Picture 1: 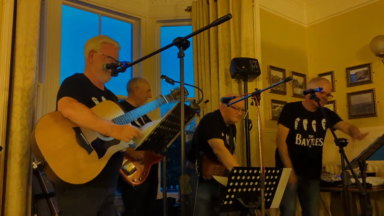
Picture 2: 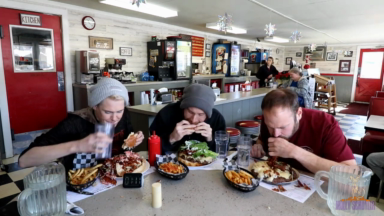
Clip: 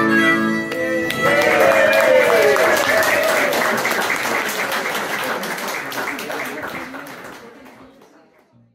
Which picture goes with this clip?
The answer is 1